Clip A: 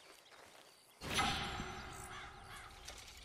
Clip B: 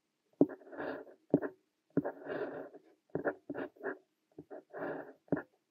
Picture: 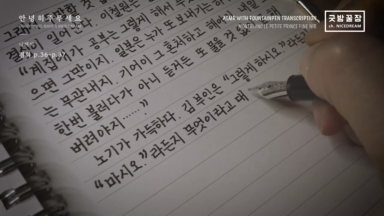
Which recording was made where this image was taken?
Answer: B